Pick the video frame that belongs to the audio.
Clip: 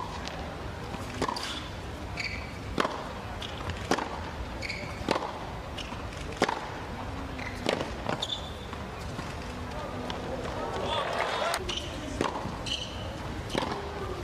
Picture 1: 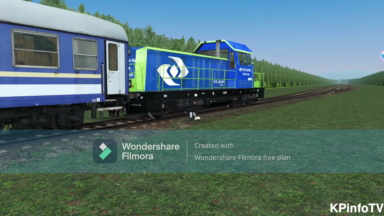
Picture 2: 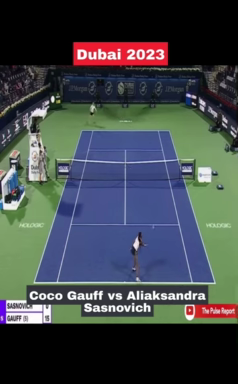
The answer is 2